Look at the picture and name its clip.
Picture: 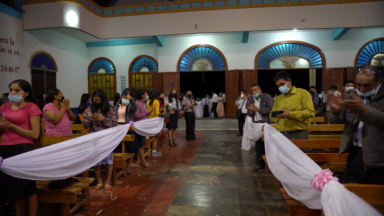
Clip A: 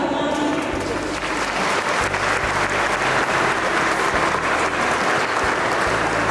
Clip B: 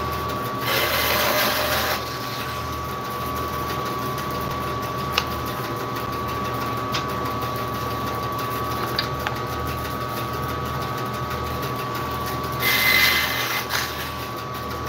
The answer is A